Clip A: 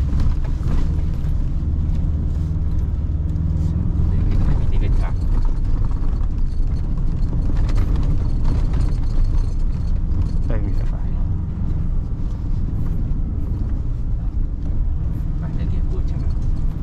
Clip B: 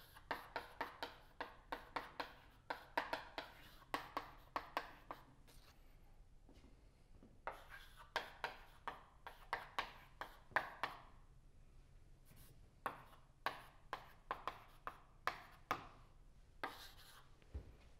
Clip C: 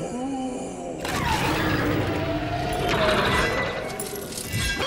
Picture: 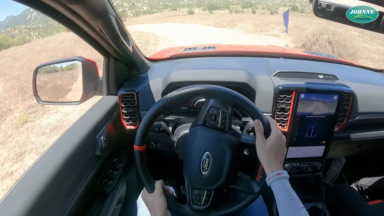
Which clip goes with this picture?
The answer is A